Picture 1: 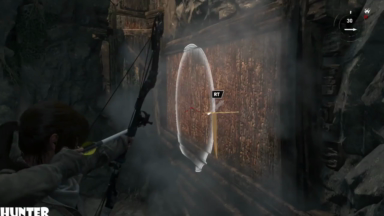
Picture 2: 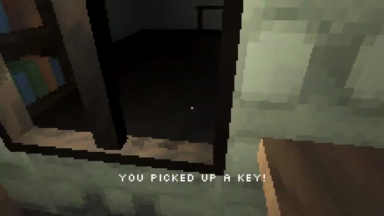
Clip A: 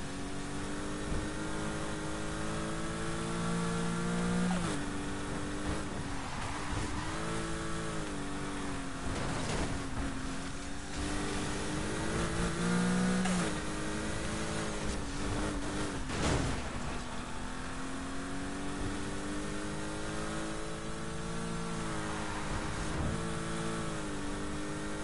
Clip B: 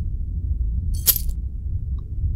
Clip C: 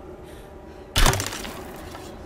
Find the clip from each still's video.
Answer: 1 C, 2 B